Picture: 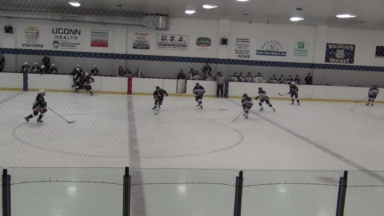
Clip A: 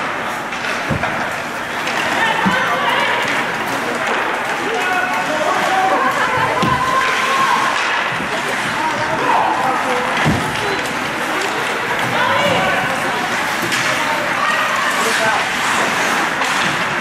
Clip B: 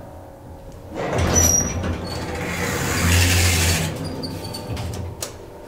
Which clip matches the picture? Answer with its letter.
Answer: A